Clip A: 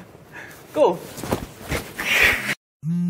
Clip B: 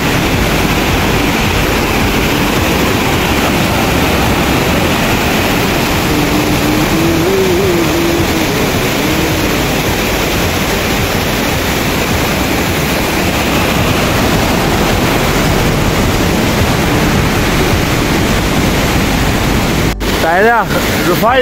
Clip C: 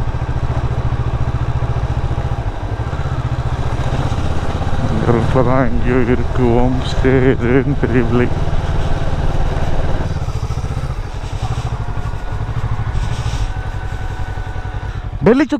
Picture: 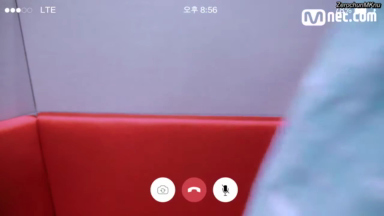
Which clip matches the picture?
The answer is A